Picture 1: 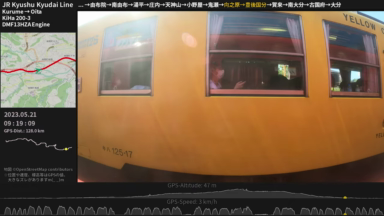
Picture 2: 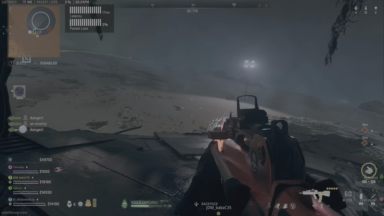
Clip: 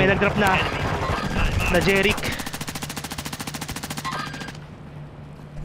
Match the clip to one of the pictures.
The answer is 2